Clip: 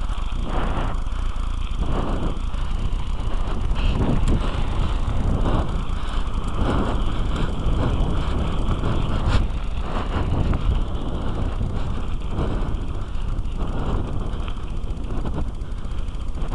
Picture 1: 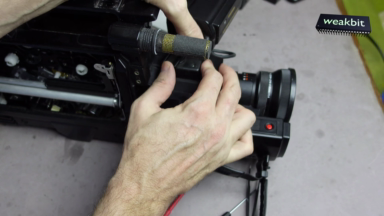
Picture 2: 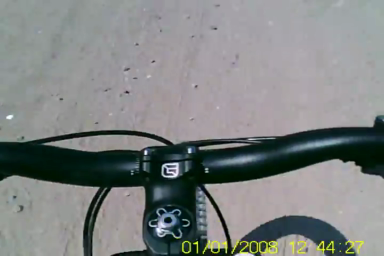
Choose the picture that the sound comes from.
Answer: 2